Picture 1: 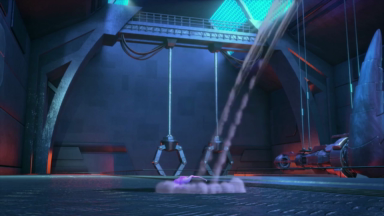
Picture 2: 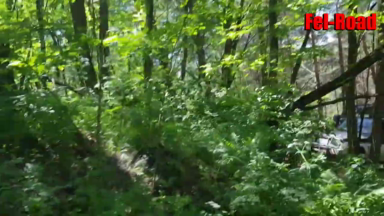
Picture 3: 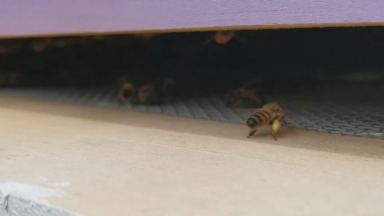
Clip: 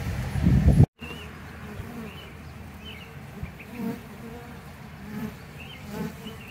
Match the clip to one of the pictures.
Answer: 3